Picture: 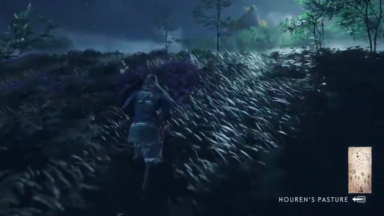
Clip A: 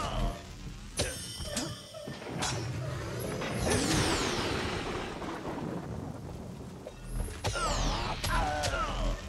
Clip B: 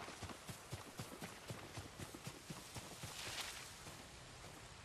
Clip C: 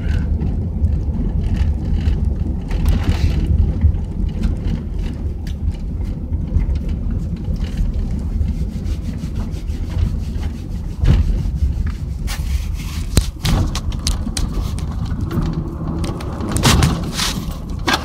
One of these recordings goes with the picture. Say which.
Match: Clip B